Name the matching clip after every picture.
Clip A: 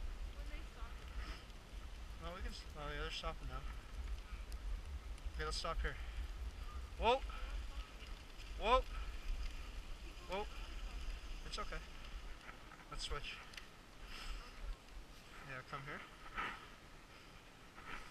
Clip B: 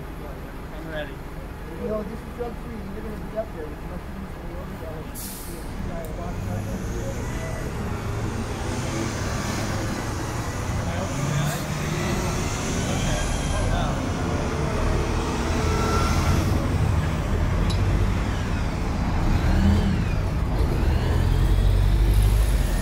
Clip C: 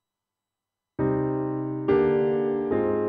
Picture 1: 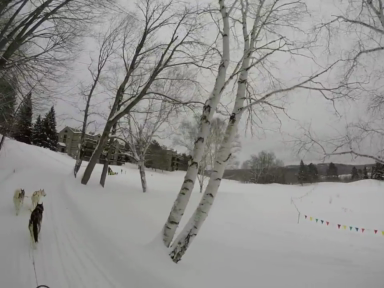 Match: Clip A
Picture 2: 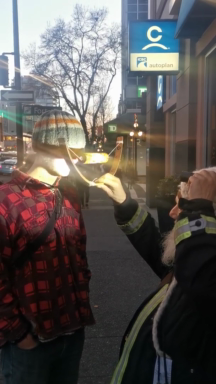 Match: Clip B